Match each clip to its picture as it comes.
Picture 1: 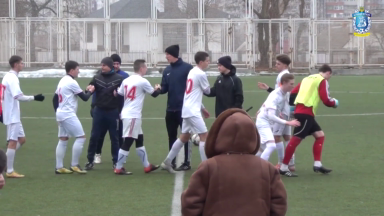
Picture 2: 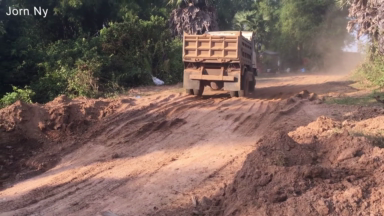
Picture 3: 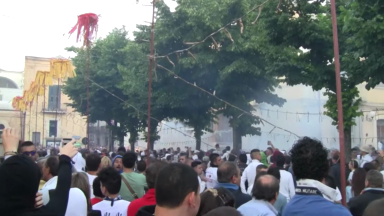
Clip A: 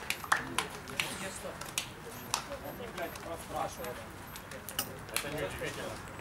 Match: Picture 1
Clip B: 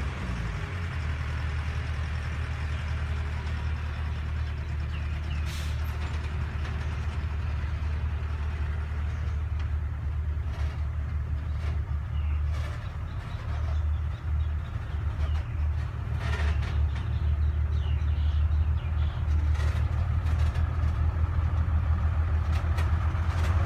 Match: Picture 2